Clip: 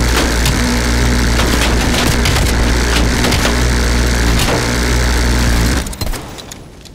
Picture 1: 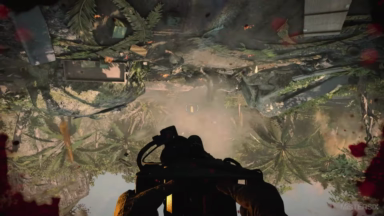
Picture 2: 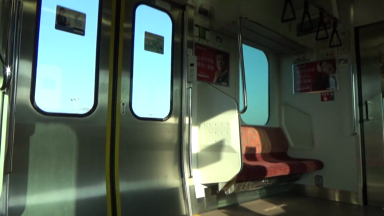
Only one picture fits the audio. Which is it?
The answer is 1